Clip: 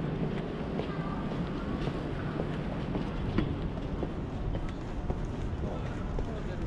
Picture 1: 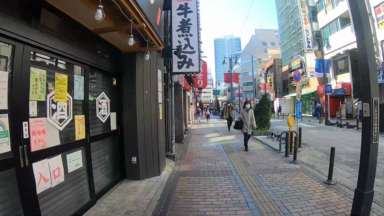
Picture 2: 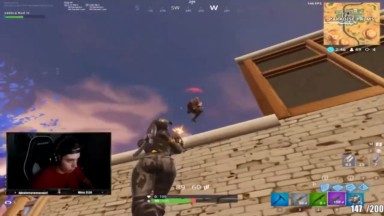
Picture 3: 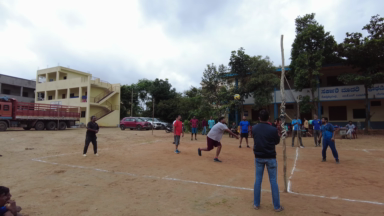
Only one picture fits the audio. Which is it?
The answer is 1